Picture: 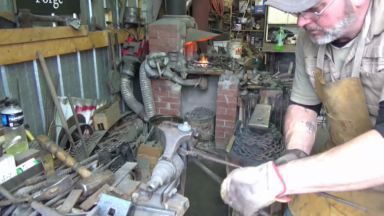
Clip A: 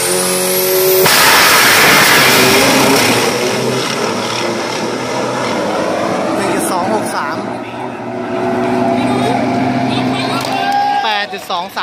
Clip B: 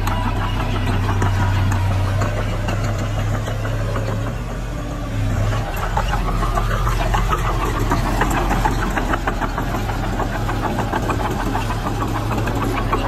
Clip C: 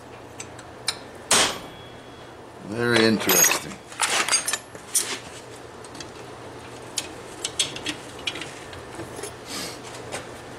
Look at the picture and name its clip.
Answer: C